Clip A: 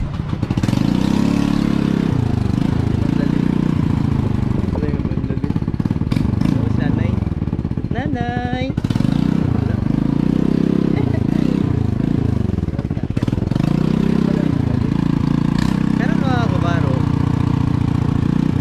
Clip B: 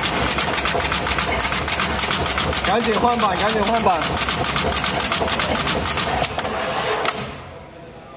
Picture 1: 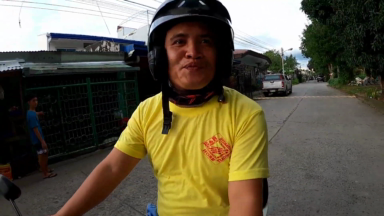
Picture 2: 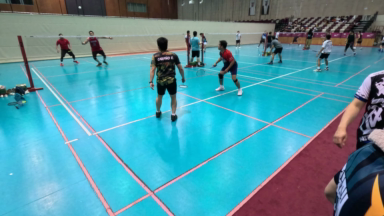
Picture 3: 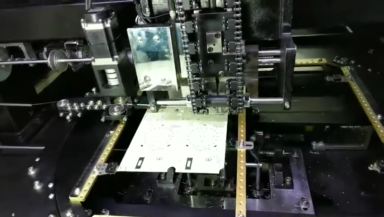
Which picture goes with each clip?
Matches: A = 1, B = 3